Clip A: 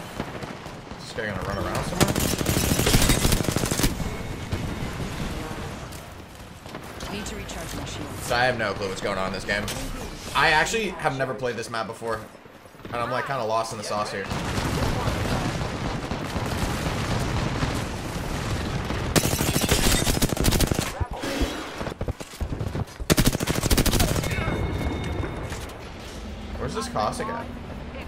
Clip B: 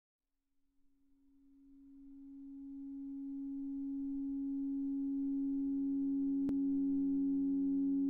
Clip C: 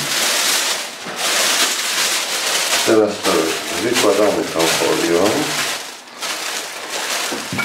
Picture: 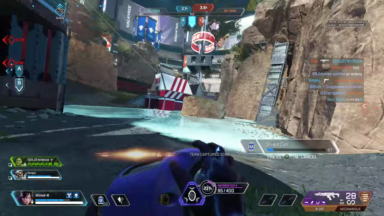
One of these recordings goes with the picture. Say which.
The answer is A